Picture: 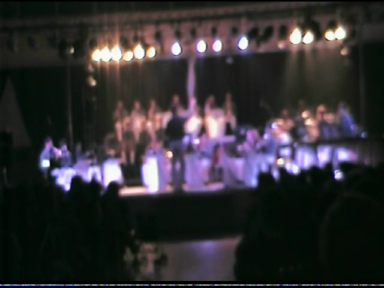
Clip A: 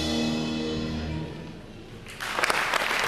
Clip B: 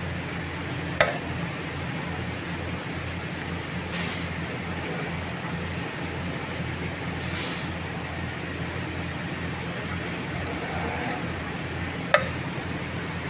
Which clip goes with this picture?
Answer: A